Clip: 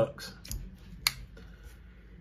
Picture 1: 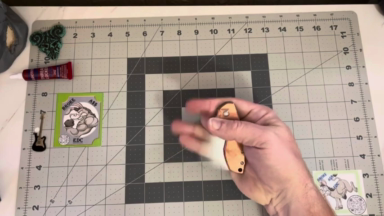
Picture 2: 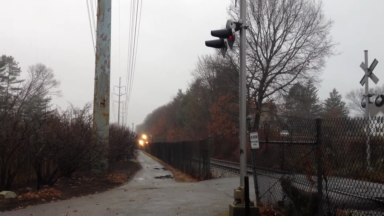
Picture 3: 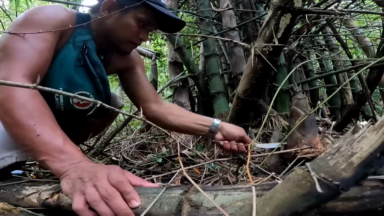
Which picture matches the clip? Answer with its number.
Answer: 1